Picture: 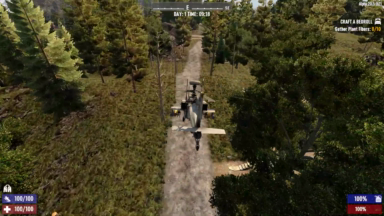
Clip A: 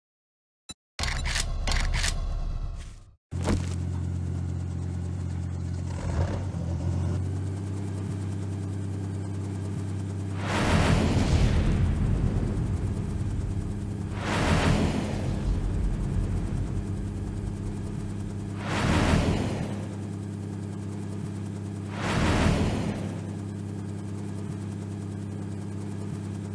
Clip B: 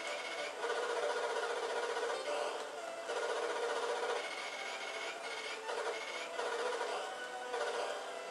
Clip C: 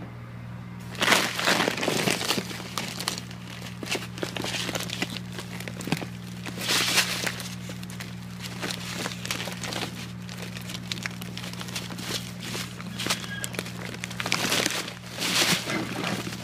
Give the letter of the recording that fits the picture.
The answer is A